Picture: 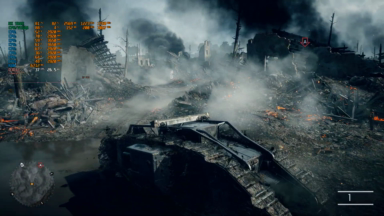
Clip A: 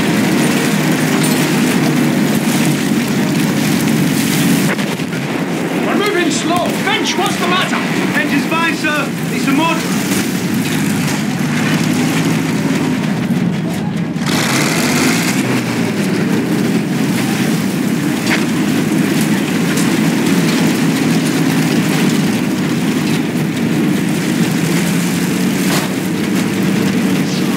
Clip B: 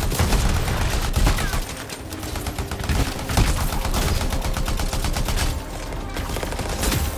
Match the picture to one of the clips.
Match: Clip A